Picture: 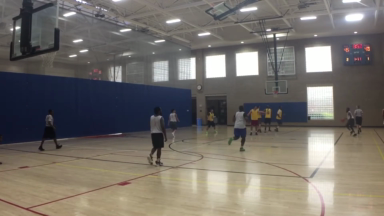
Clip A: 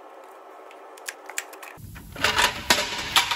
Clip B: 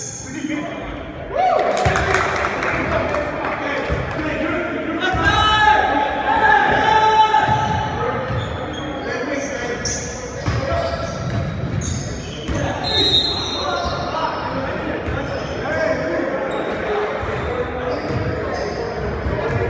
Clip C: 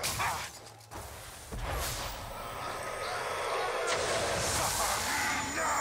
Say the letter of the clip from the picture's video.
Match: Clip B